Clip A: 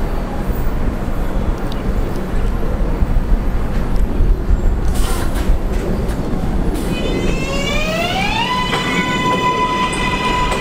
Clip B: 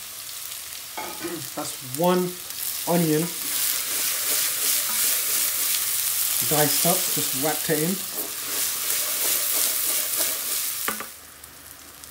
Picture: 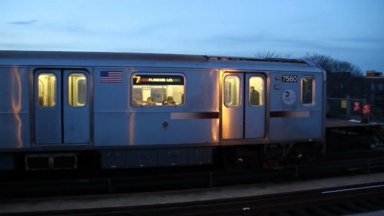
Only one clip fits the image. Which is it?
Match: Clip A